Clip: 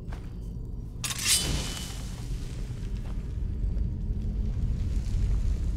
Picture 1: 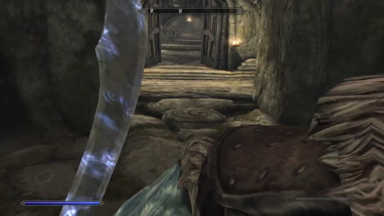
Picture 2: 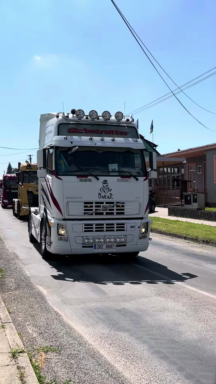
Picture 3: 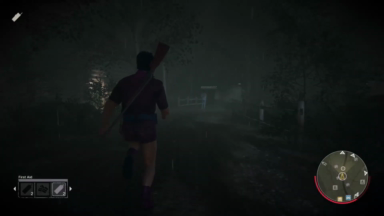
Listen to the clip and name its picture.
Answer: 1